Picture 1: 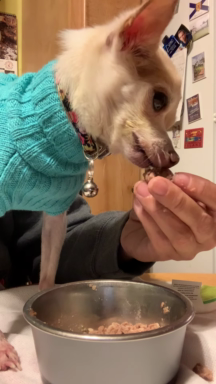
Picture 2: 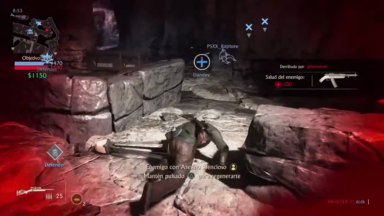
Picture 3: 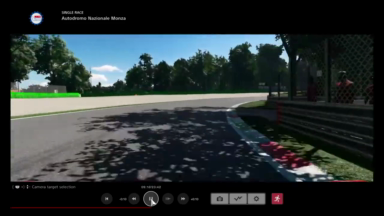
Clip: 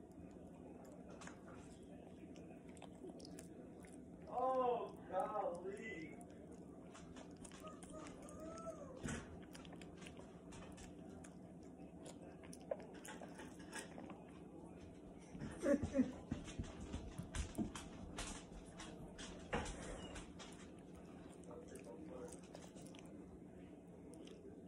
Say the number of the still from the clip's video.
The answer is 1